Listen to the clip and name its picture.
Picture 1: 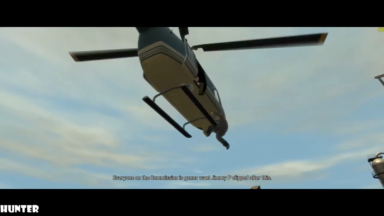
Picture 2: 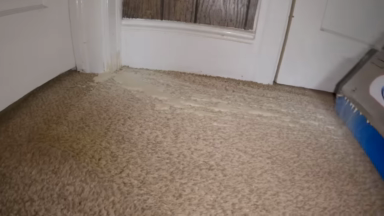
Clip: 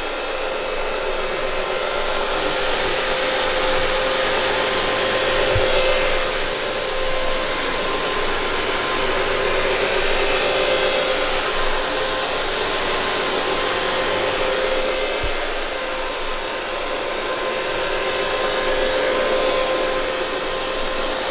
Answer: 2